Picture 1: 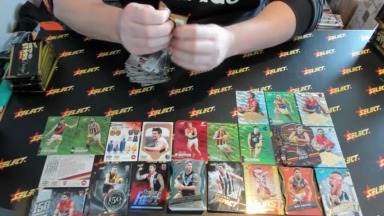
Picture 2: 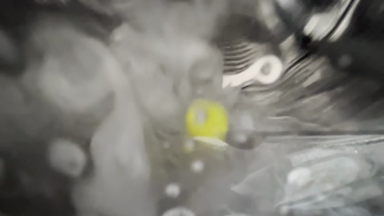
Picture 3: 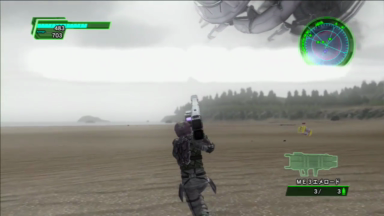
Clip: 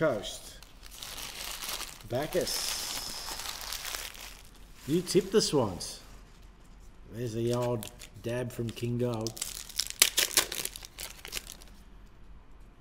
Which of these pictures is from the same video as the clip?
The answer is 1